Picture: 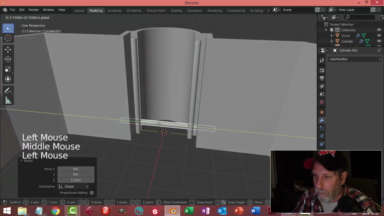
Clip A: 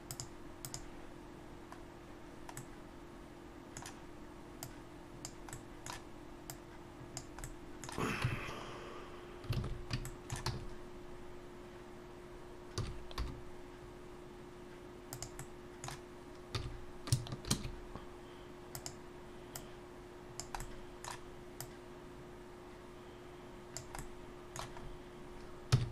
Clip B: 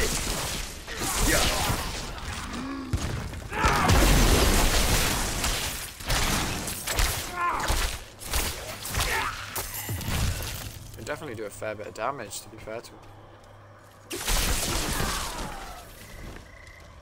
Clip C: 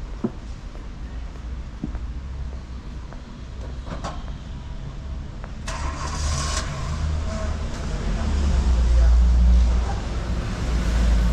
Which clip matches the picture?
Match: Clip A